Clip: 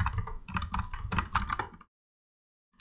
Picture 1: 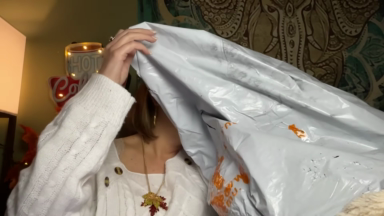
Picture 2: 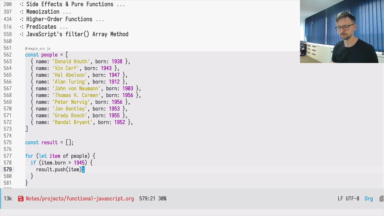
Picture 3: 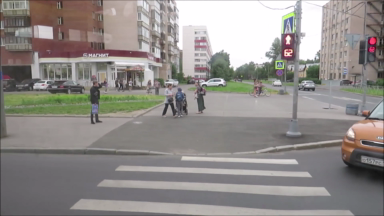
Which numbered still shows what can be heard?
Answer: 2